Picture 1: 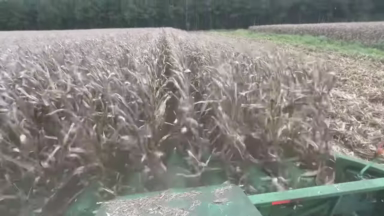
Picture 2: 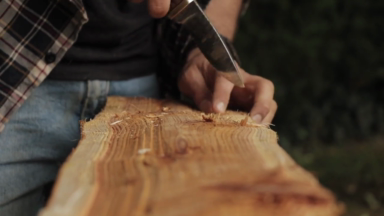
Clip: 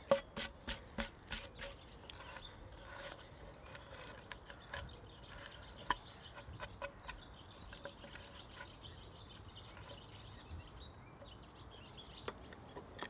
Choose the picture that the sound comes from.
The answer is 2